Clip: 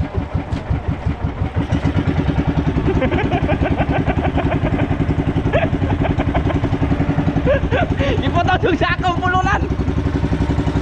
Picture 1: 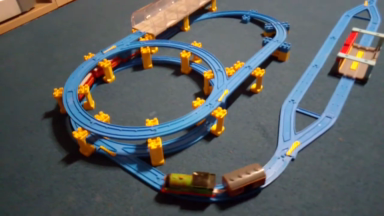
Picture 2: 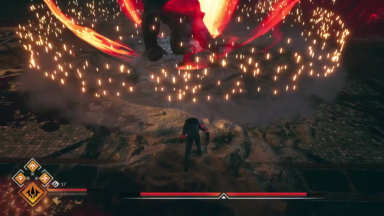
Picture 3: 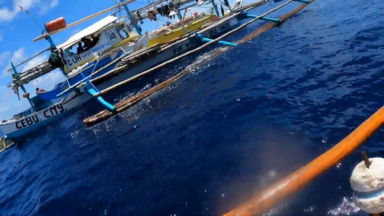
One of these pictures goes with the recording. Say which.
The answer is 3